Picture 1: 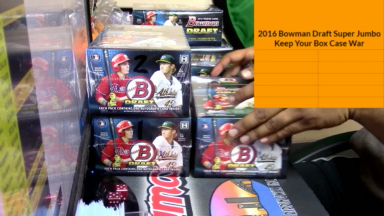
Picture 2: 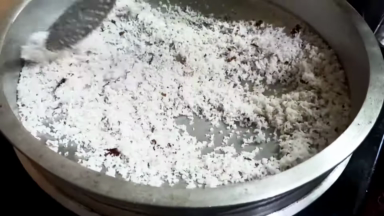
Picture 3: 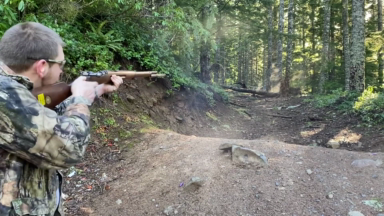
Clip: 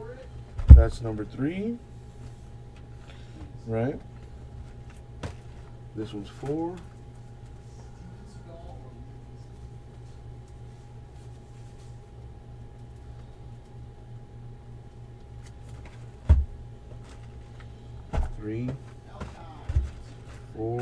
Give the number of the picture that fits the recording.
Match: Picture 1